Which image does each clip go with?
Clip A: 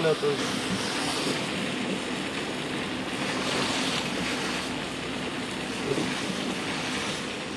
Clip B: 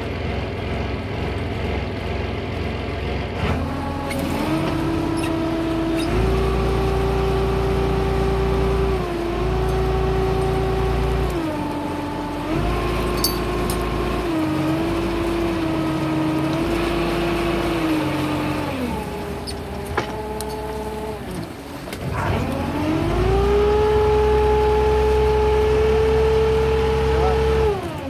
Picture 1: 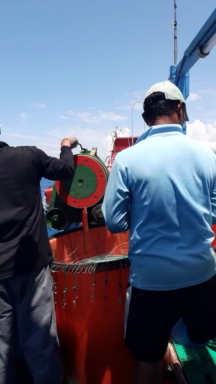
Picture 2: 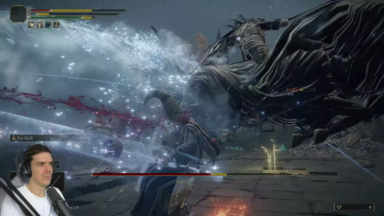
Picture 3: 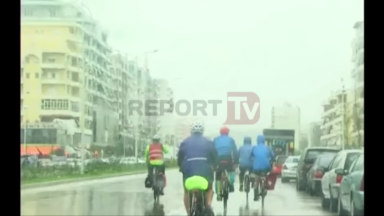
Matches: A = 3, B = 1